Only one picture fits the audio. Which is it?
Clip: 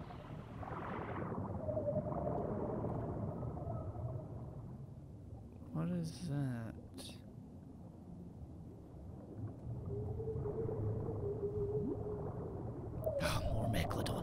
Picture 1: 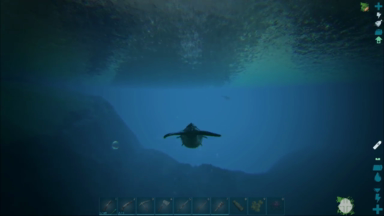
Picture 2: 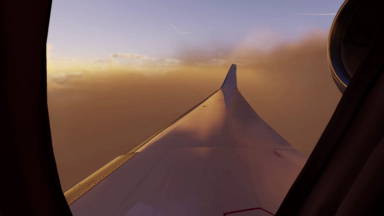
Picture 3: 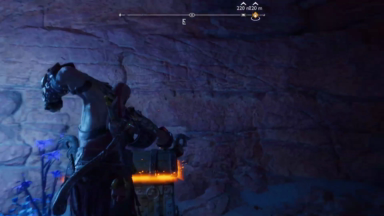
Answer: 1